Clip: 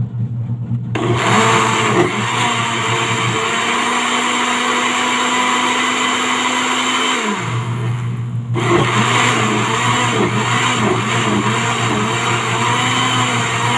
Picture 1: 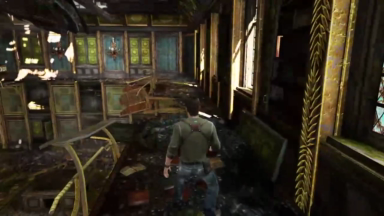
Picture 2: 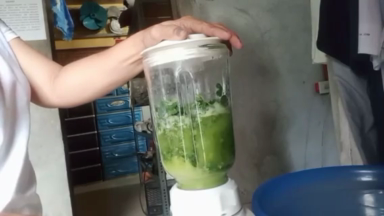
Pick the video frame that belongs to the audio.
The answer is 2